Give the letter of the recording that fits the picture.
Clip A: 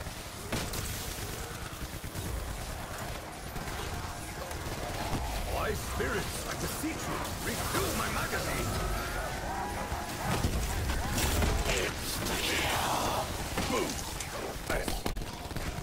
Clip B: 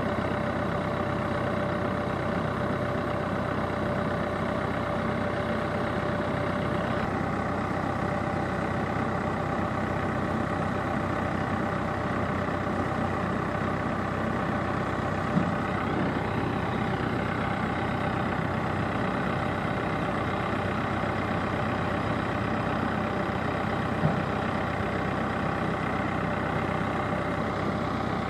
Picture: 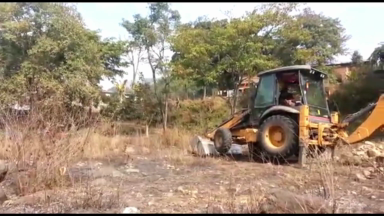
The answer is B